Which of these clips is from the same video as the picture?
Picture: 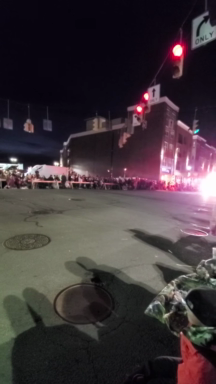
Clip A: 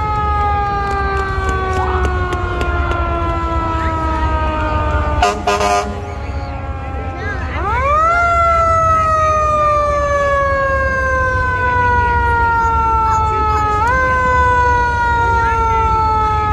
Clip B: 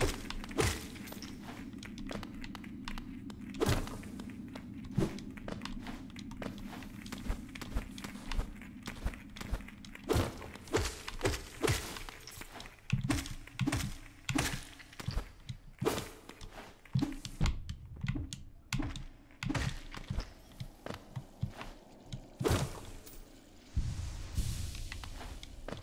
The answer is A